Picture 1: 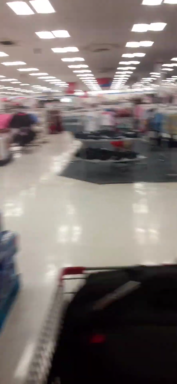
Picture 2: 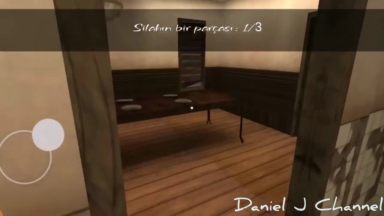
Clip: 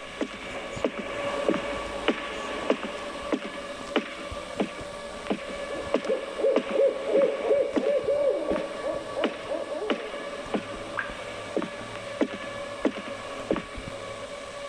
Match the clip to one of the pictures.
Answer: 2